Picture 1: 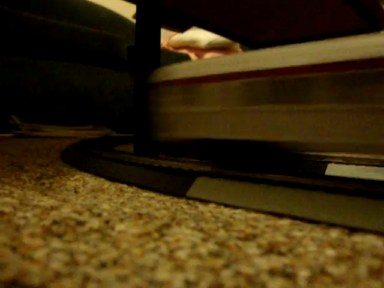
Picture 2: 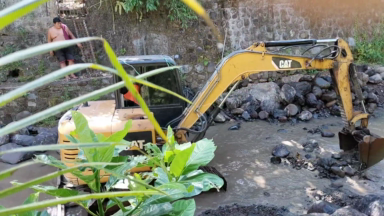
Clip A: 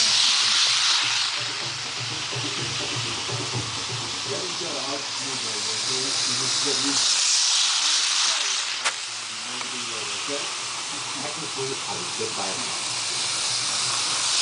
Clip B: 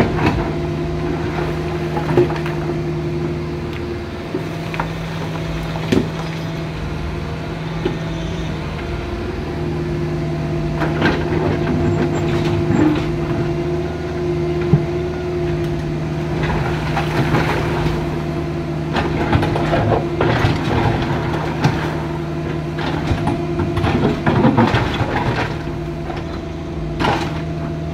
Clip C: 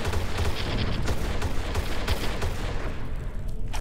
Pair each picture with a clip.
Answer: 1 A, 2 B